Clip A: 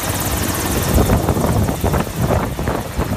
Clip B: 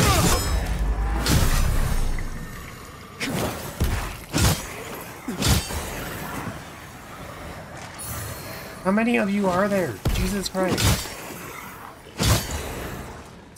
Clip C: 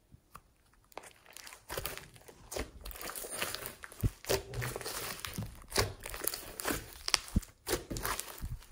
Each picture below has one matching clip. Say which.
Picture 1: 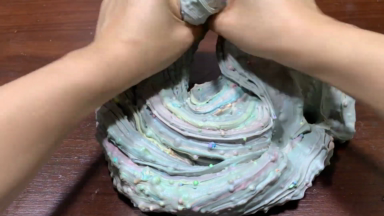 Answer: C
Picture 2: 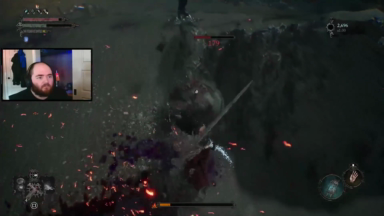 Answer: B